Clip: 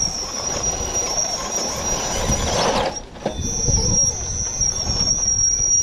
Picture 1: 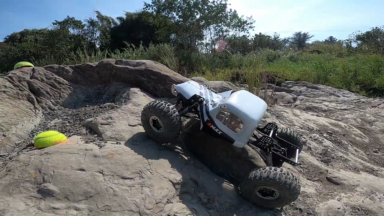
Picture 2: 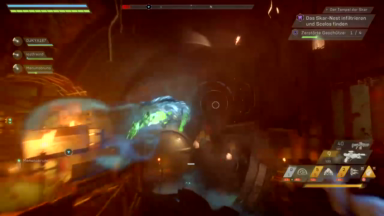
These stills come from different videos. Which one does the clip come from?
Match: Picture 1